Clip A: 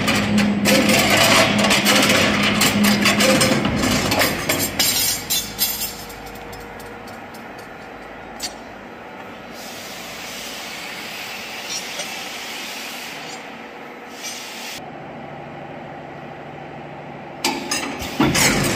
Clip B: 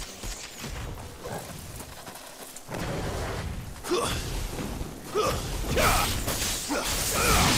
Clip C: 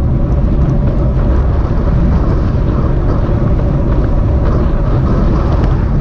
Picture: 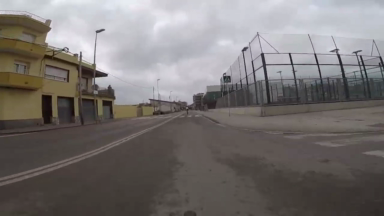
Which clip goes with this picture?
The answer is C